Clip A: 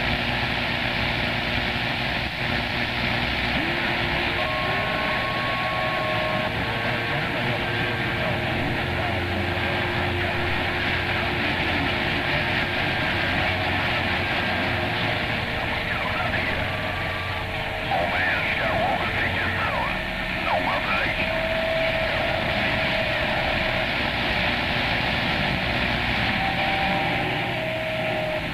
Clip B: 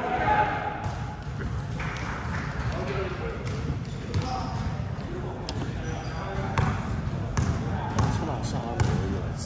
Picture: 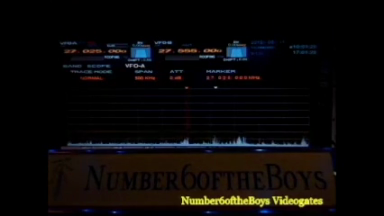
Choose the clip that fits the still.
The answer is A